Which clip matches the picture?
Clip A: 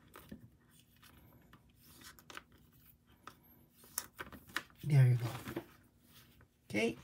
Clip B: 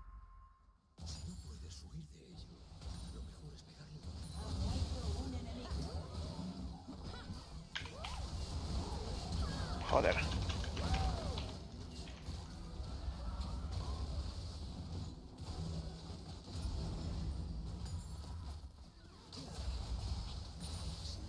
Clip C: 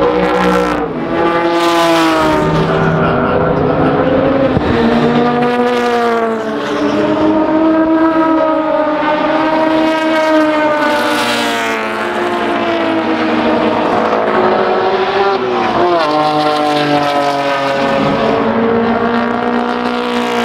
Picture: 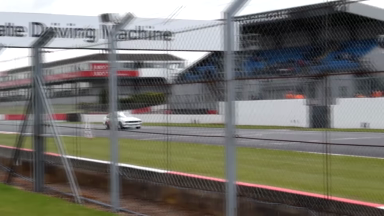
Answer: C